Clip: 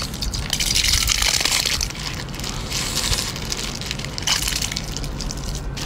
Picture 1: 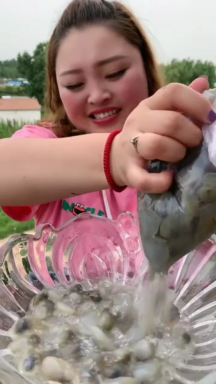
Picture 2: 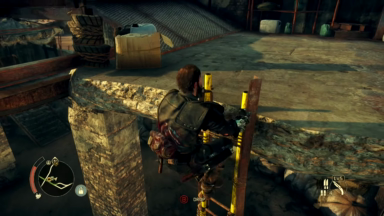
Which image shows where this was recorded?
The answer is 1